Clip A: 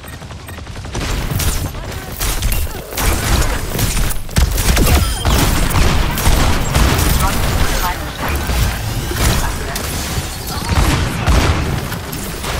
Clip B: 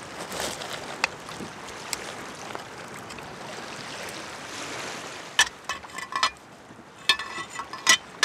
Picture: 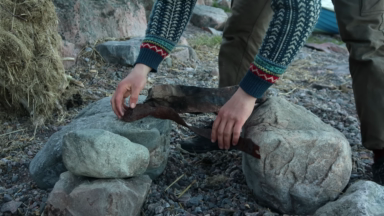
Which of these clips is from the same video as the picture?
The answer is B